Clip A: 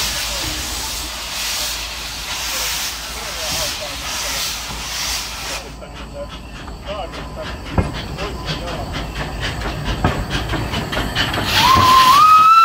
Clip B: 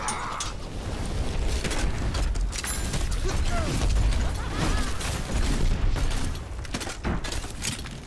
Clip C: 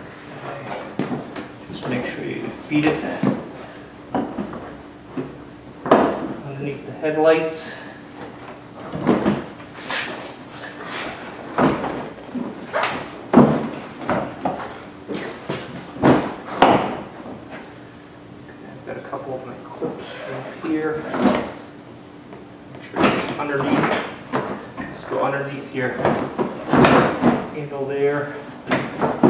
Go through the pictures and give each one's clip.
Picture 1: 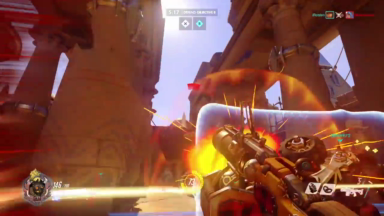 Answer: B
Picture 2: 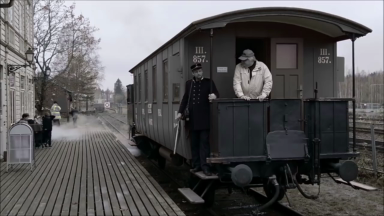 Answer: A